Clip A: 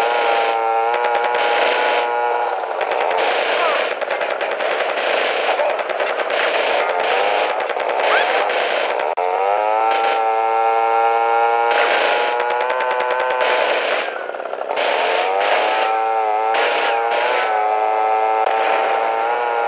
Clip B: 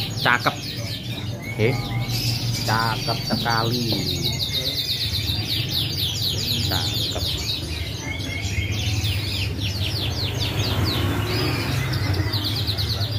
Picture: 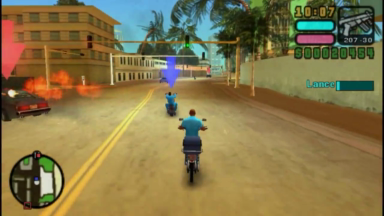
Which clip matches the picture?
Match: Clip A